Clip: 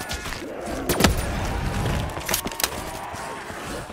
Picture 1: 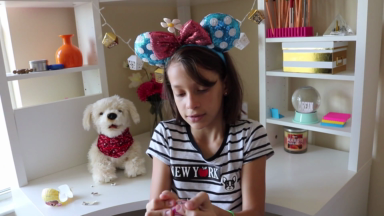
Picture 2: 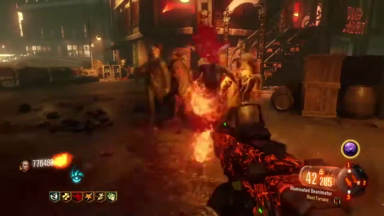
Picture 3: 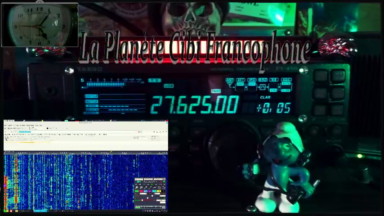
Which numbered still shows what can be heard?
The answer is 2